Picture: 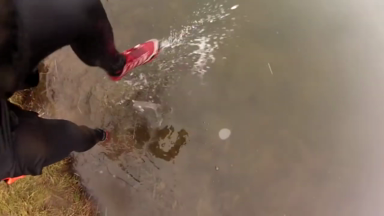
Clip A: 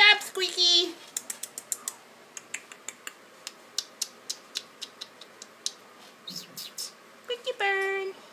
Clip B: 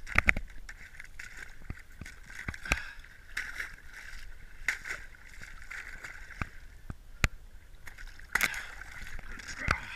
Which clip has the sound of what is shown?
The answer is B